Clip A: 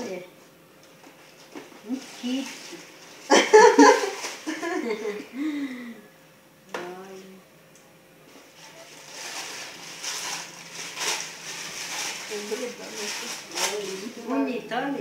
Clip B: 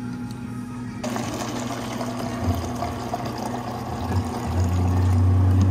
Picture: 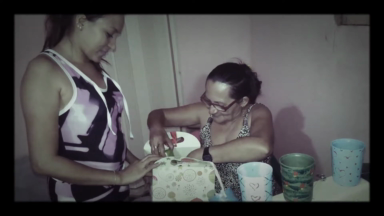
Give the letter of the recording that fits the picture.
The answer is A